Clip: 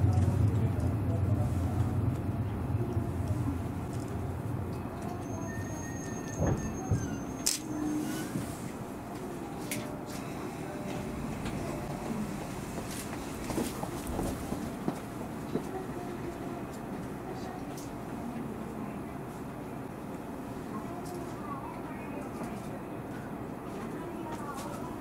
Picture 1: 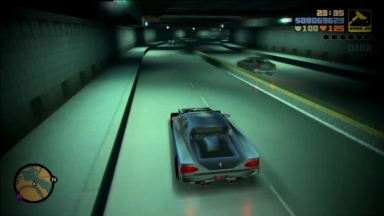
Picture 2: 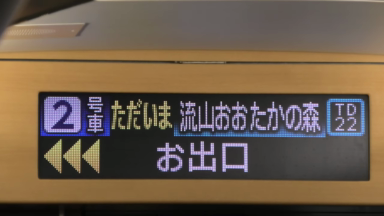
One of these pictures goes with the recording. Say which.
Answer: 2